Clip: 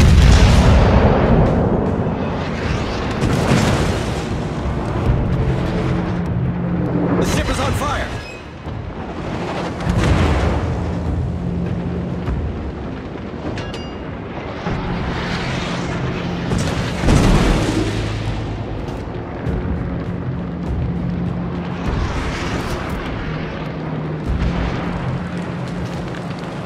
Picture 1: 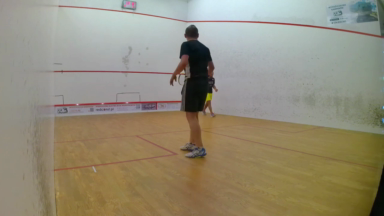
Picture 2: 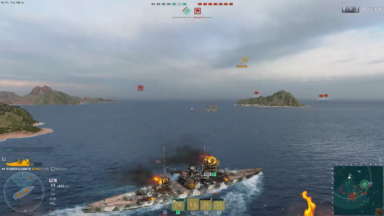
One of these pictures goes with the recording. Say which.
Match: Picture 2